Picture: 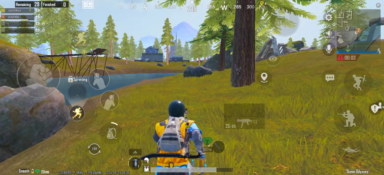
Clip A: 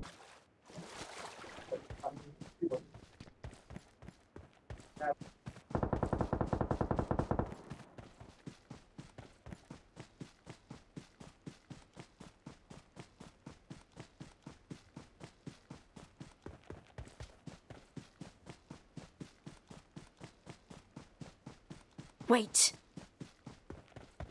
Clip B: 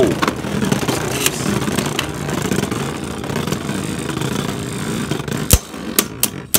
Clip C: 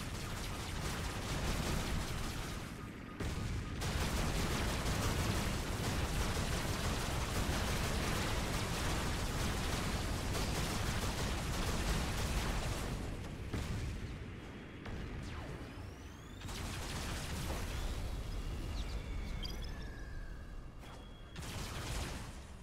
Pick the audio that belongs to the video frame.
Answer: A